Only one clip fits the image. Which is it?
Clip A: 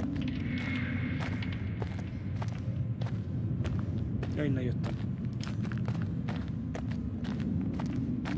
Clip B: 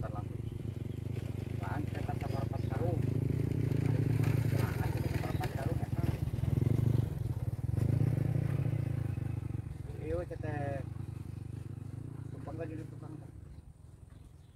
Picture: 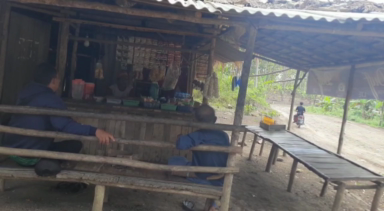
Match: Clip B